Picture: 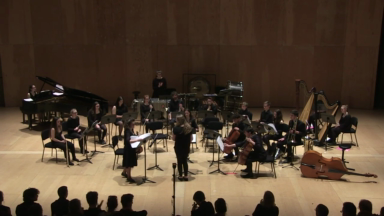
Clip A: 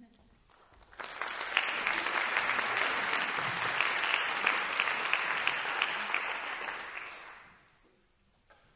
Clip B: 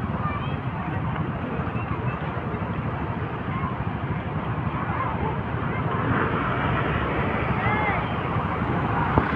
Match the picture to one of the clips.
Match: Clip A